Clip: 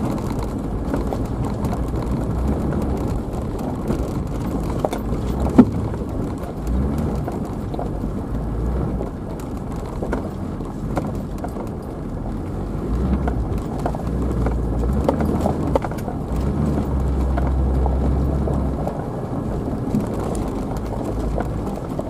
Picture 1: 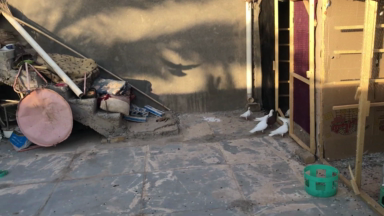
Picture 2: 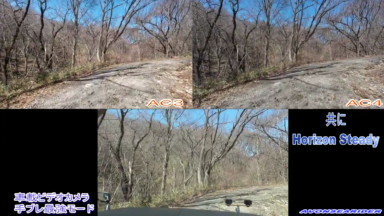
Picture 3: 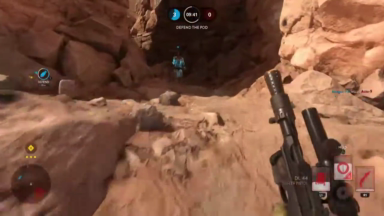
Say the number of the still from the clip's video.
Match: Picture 2